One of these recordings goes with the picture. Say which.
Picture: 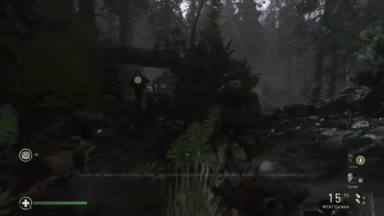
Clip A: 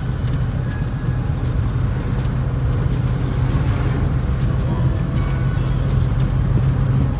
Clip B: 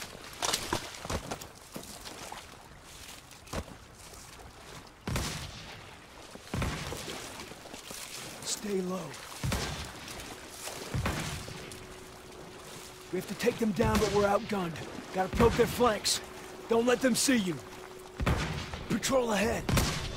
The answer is B